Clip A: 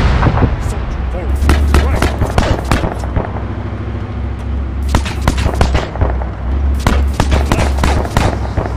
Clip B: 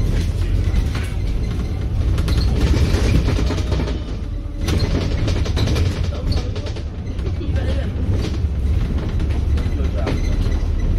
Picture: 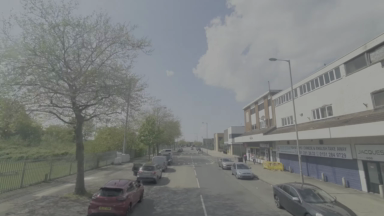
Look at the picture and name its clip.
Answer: B